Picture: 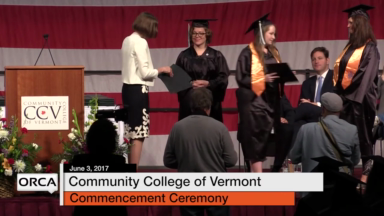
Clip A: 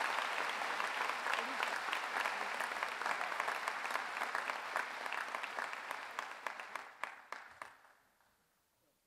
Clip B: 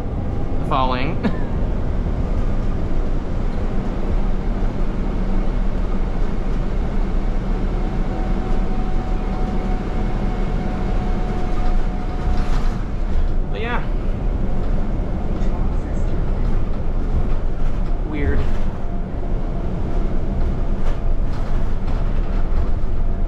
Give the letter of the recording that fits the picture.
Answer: A